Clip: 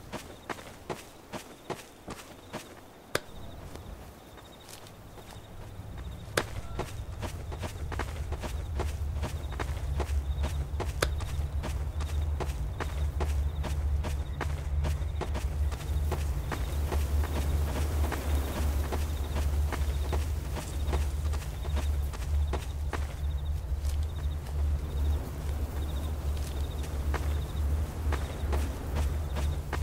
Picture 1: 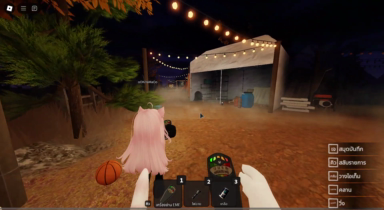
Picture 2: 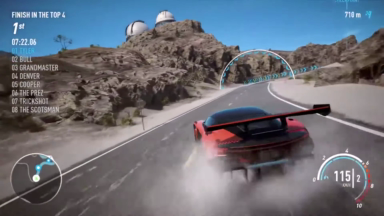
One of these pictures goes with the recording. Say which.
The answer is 1